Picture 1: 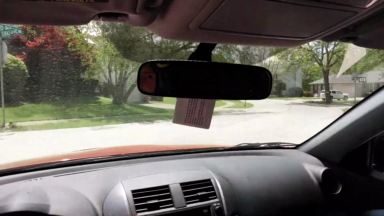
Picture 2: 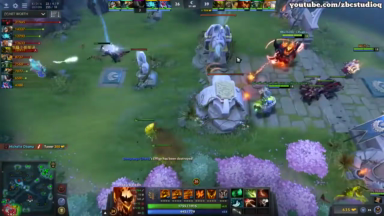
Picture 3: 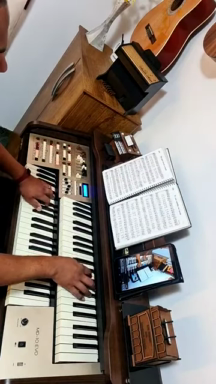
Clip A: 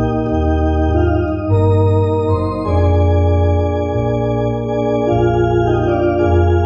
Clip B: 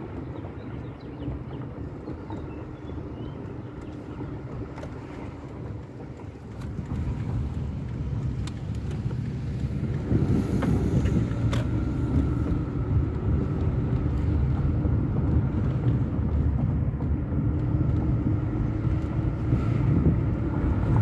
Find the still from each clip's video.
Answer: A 3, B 1